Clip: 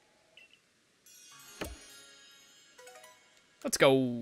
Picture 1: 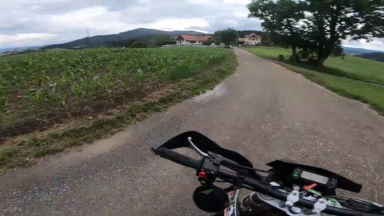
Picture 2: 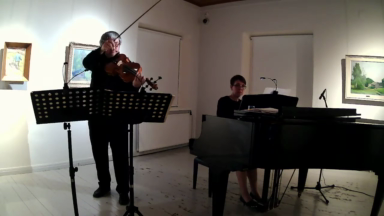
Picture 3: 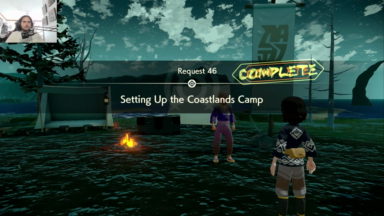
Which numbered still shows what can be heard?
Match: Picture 3